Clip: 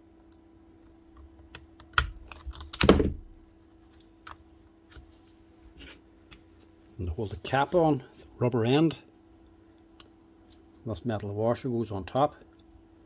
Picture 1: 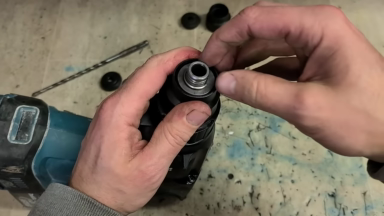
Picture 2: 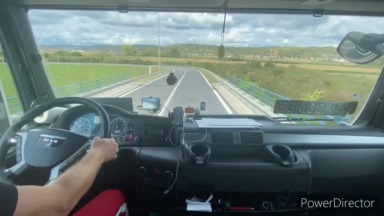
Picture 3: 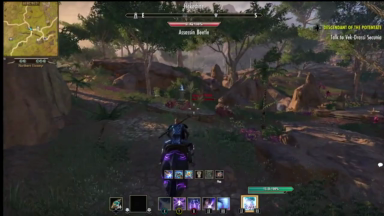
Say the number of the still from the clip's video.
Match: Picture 1